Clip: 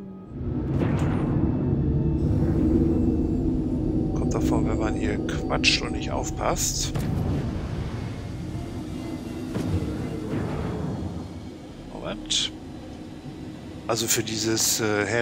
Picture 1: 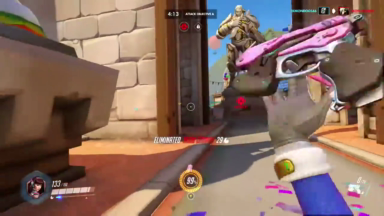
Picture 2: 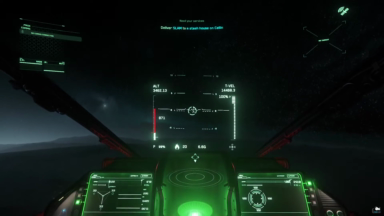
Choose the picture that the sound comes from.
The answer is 2